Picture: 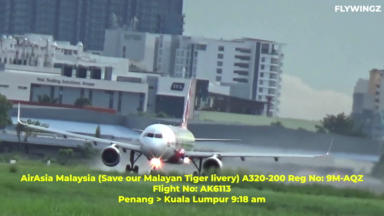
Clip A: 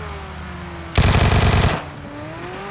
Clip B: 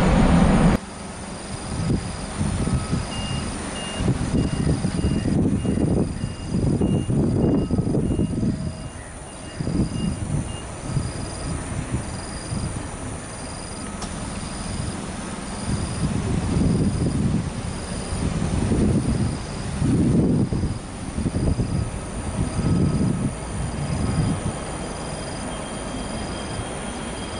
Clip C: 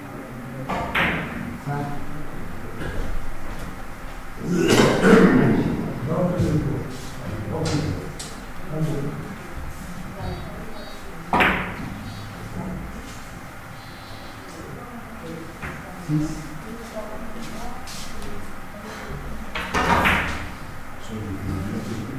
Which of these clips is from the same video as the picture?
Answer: B